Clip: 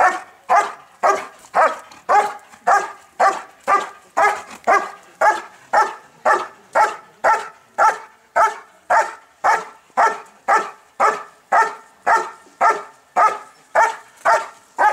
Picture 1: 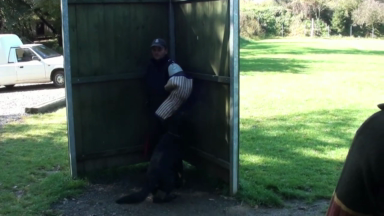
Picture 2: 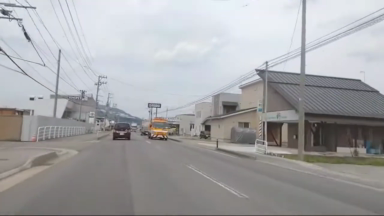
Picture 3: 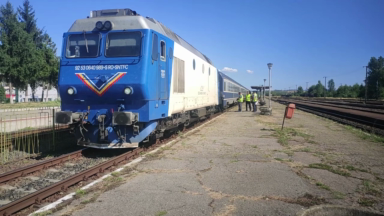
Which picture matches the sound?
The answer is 1